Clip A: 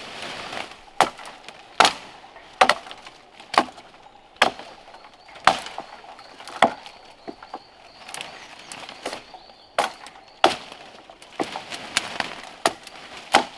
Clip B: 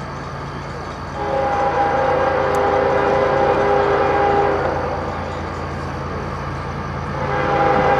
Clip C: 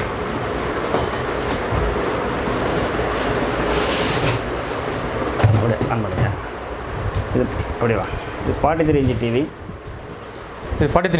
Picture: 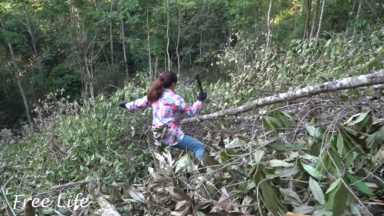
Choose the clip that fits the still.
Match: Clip A